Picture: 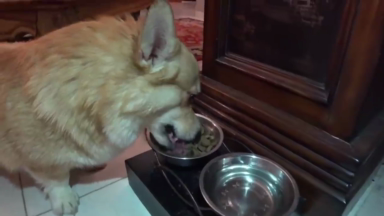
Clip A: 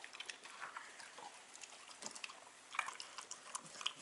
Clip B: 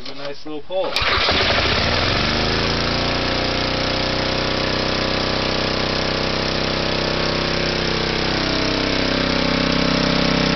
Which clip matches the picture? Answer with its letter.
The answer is A